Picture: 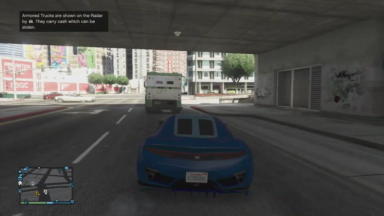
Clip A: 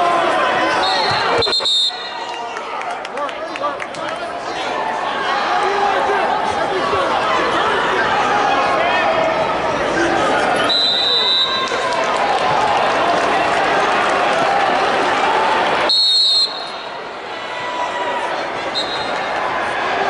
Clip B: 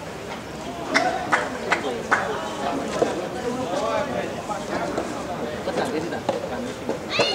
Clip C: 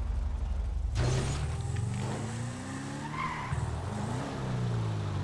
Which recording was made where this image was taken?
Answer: C